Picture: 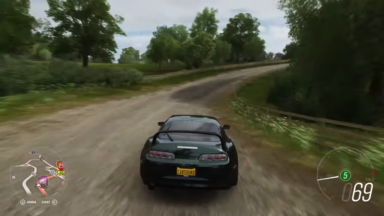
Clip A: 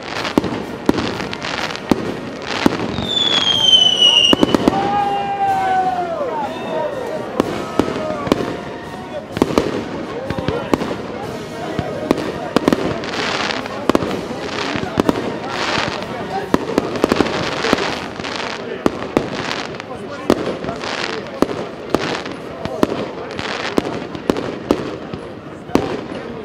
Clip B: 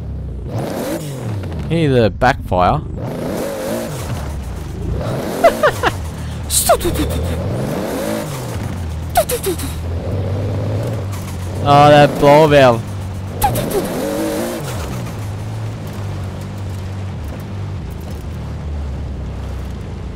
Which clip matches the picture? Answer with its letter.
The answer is B